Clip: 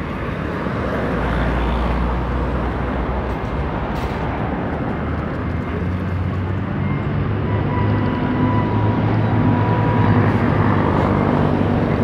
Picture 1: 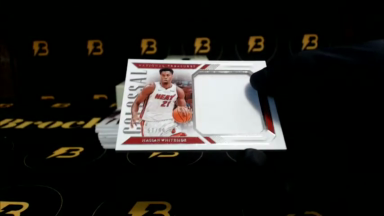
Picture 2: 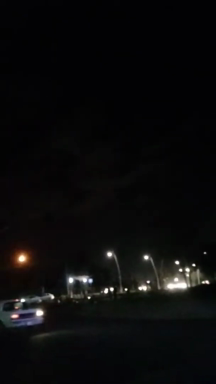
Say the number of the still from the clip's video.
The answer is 2